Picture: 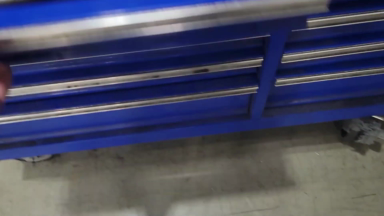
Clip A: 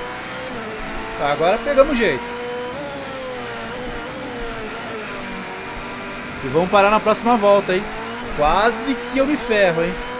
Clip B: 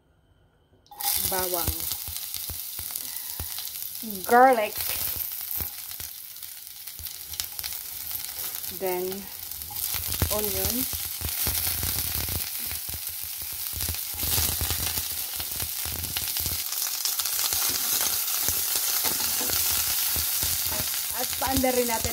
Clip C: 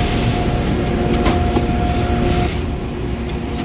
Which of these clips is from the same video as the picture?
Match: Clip C